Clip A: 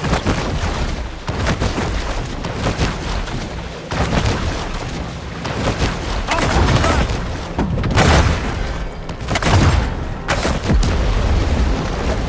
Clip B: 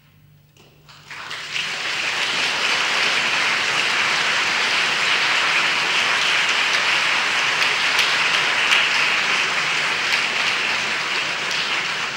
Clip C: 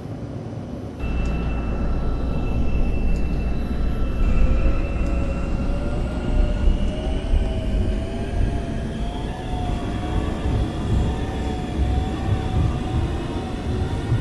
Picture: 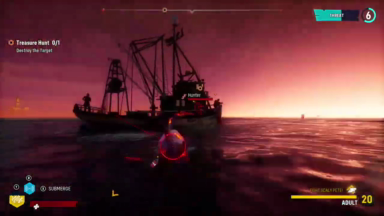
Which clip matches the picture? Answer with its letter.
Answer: A